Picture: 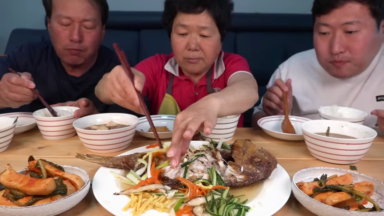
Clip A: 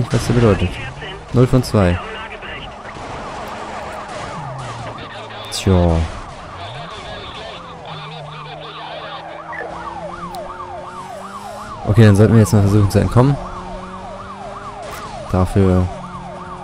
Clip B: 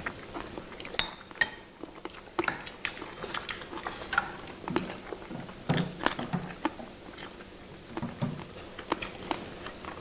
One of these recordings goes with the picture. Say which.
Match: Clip B